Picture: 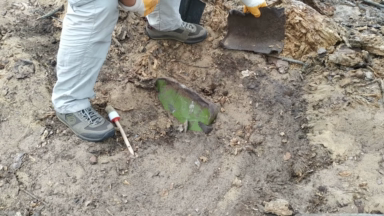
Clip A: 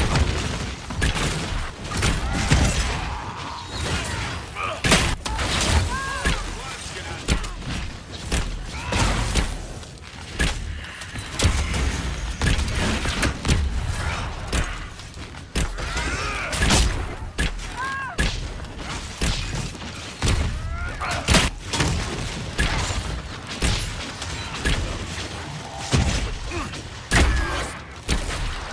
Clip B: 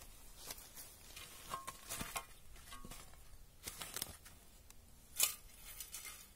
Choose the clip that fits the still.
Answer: B